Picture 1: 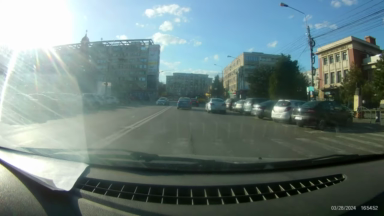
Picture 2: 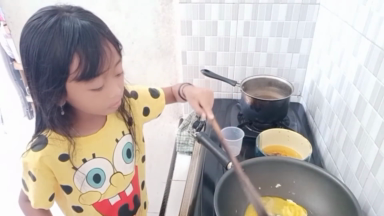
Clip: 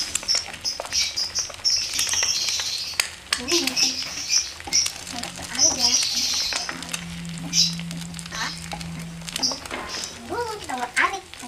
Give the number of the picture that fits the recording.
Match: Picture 2